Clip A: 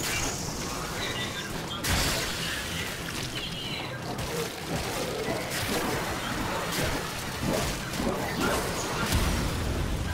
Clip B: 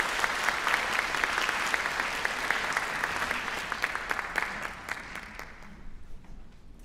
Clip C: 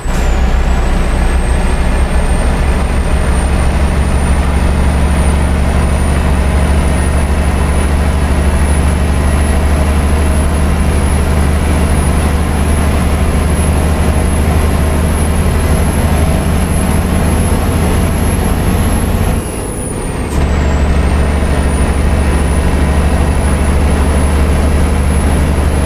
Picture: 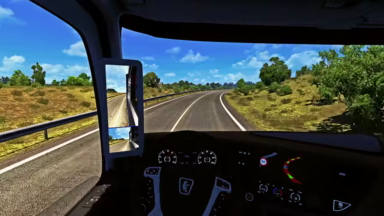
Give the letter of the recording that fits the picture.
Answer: C